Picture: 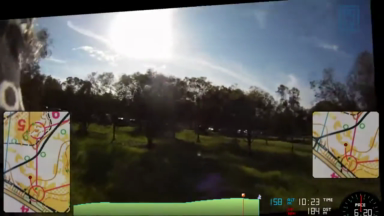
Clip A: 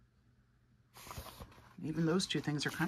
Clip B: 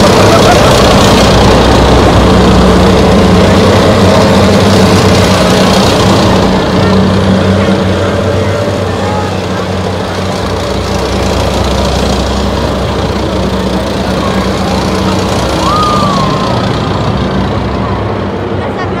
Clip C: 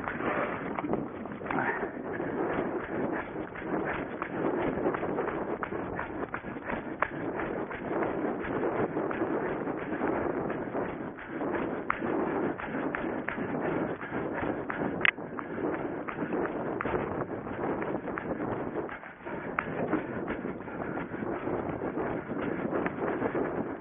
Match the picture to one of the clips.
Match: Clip C